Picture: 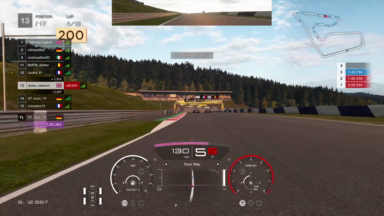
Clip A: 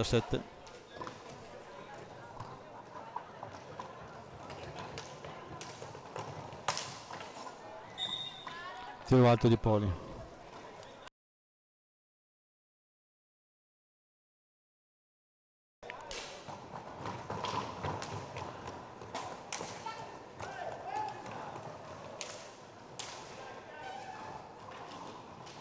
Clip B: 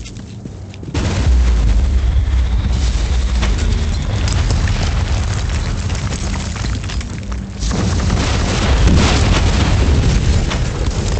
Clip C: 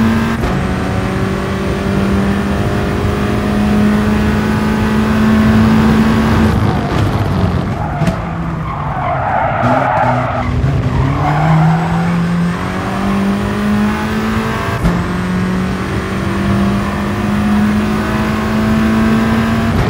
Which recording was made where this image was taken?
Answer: C